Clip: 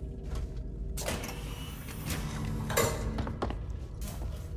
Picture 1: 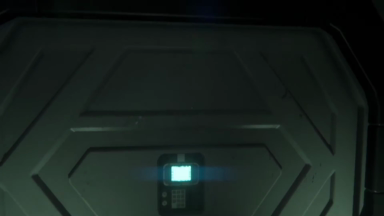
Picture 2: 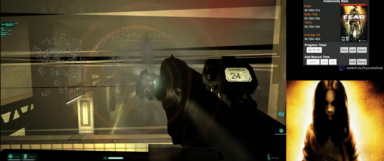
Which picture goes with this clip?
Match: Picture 1